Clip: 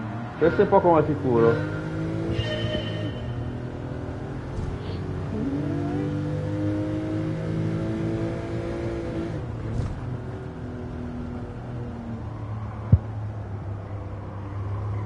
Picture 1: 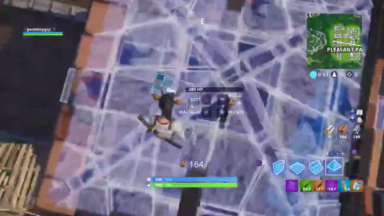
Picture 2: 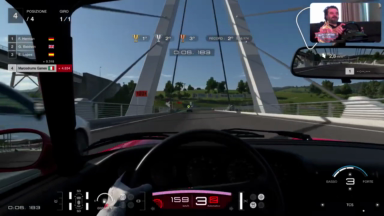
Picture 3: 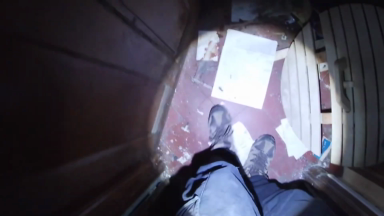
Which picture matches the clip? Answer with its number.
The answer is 2